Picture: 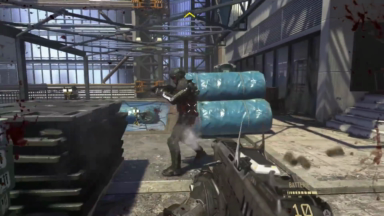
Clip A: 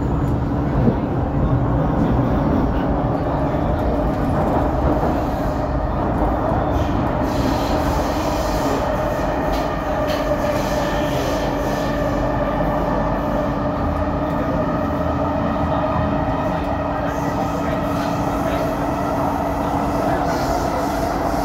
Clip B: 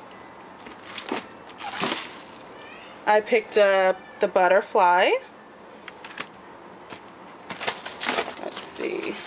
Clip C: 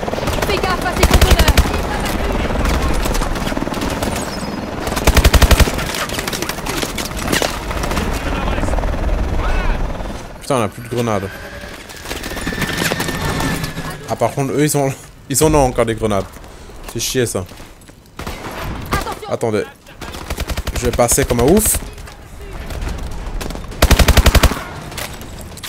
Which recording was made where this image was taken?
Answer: C